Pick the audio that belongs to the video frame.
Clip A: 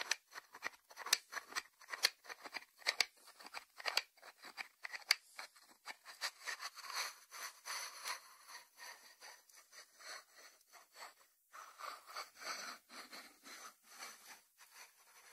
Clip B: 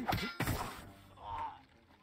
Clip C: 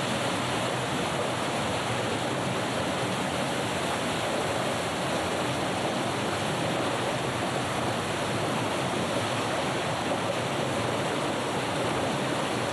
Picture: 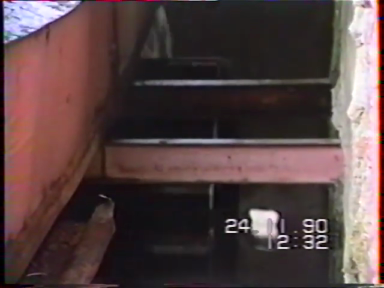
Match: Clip C